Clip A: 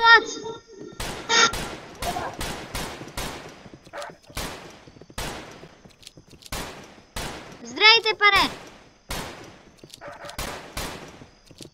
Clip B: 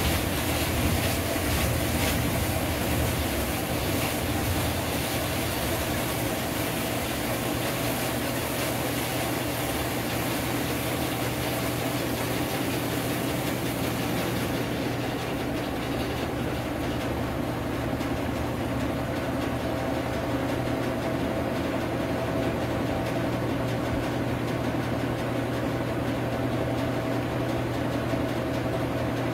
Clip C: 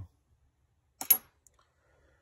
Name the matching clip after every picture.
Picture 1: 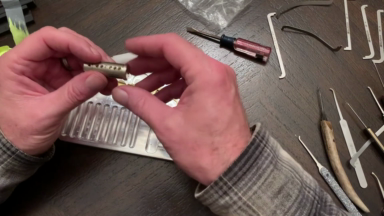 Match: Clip C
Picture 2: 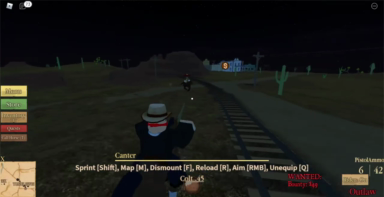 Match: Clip A